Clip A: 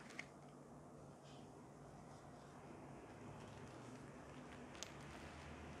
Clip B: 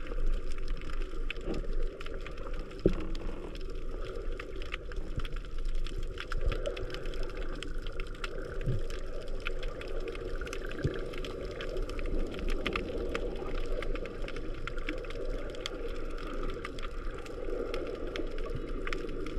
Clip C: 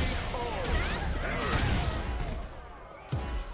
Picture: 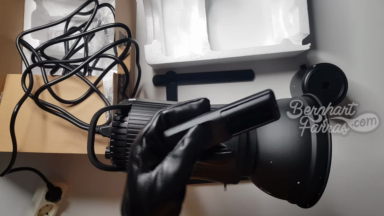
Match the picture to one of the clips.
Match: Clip A